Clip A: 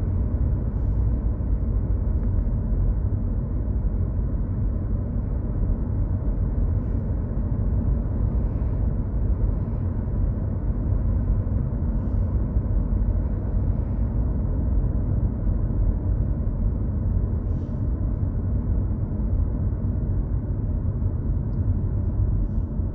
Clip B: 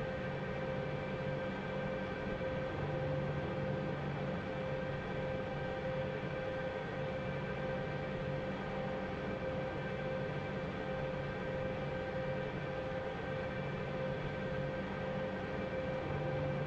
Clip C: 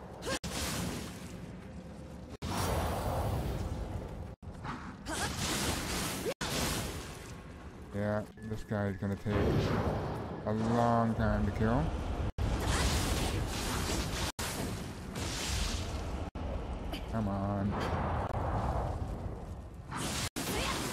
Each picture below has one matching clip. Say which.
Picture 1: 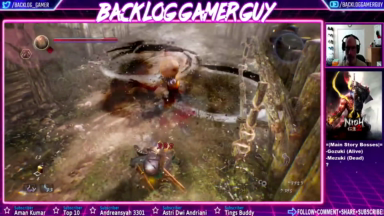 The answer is C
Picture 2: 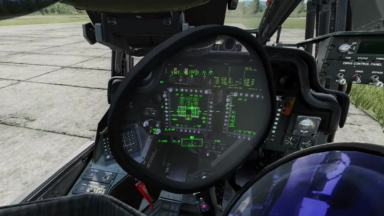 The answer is B